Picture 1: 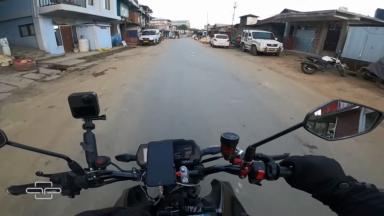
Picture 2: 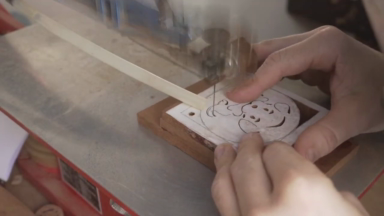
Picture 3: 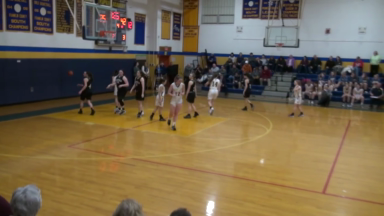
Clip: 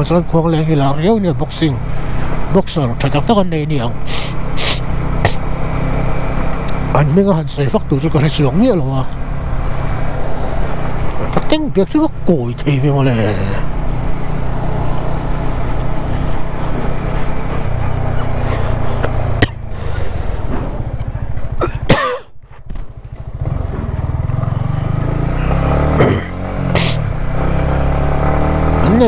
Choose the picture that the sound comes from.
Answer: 1